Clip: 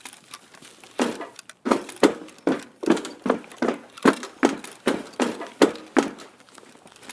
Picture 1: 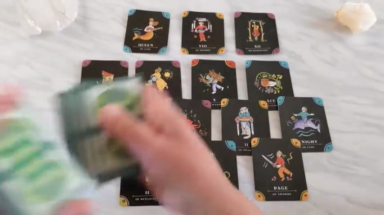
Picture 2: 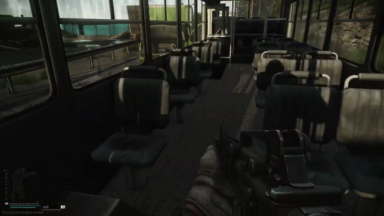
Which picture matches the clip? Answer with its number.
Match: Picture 2